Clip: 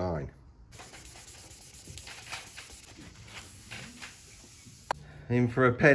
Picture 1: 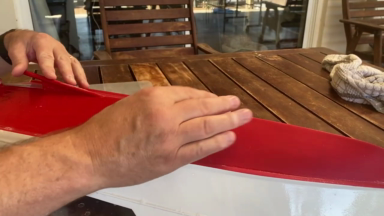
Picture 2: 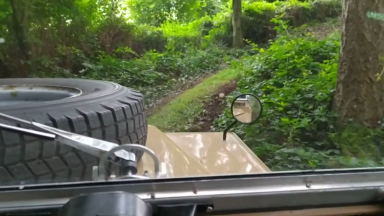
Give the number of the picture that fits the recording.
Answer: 1